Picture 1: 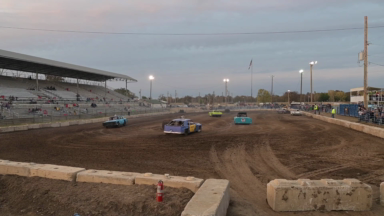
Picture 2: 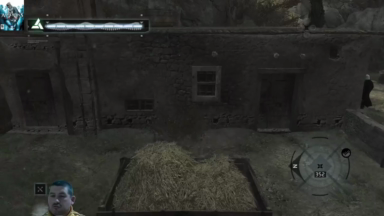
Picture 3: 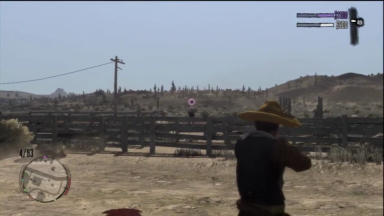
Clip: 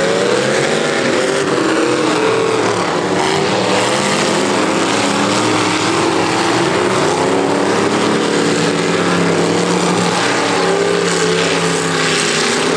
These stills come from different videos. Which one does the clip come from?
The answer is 1